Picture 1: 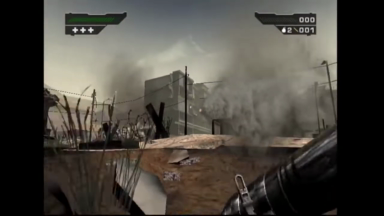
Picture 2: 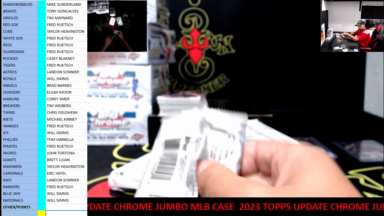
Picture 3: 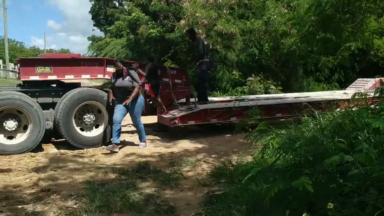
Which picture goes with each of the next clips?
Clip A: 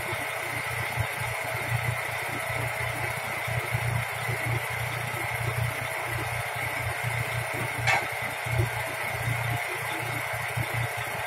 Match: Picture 3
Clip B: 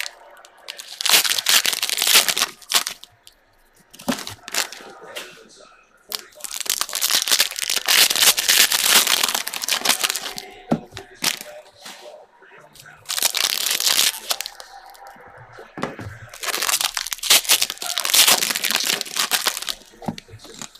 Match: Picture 2